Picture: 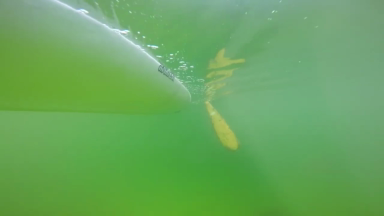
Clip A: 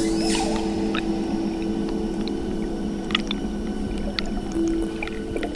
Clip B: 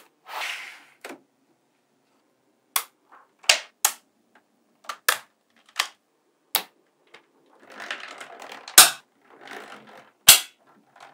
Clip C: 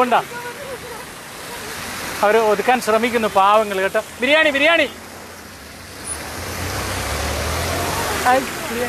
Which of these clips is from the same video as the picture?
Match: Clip A